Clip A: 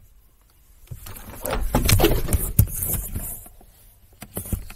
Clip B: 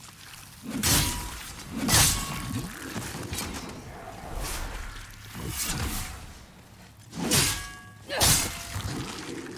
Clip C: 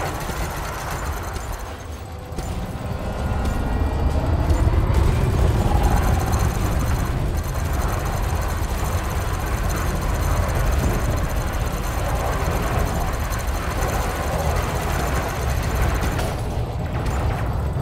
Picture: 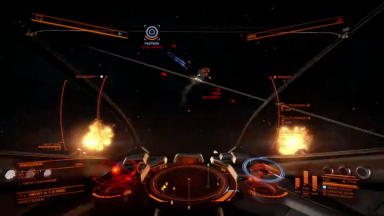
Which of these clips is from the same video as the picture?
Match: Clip C